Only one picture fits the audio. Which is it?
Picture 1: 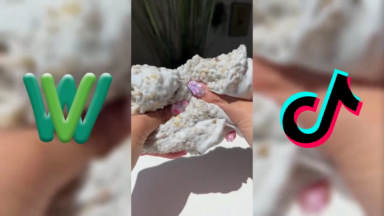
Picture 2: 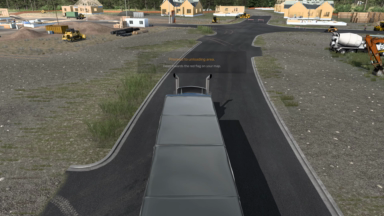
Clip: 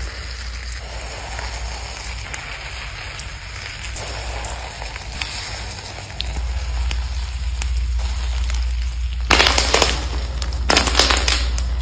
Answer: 1